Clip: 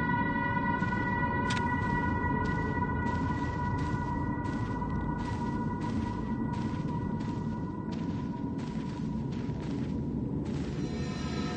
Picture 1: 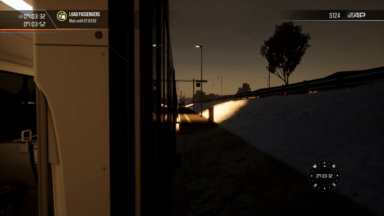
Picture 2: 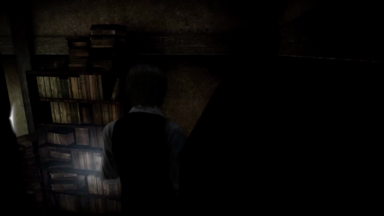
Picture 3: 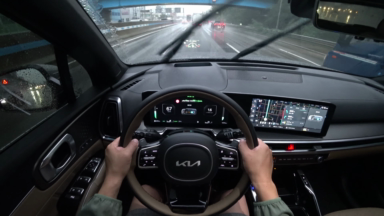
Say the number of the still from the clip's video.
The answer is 2